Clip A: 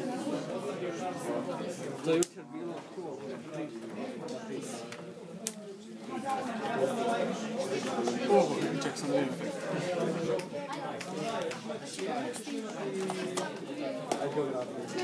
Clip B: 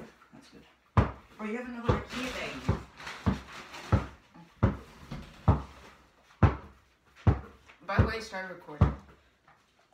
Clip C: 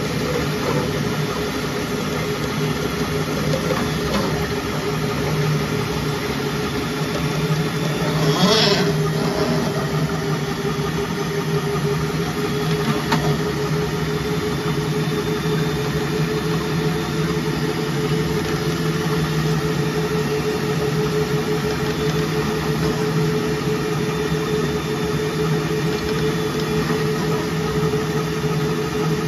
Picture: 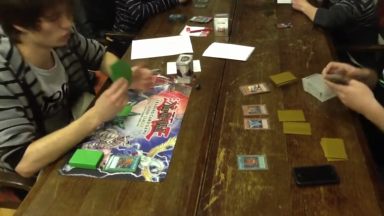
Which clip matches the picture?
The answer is A